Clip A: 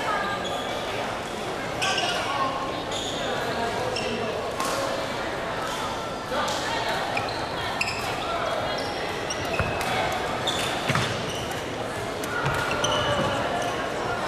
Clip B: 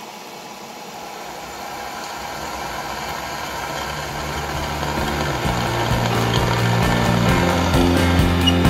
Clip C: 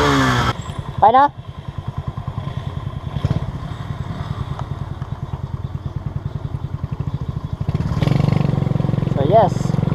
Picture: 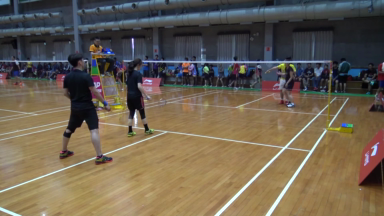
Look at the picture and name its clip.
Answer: A